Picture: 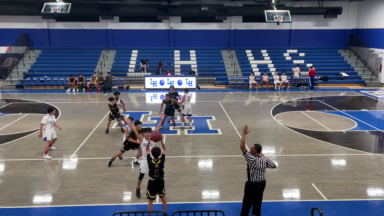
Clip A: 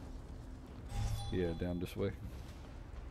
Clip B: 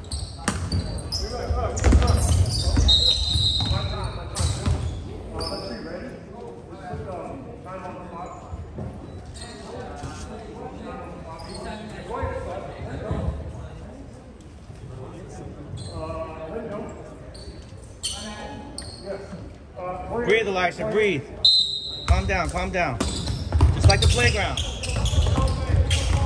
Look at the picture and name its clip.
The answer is B